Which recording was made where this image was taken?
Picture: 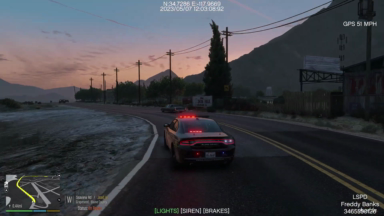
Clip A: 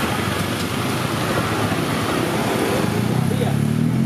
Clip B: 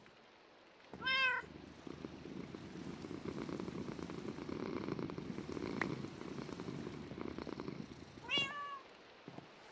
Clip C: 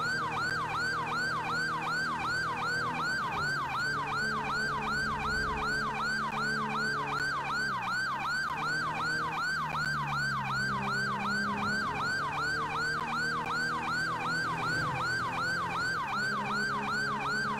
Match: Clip C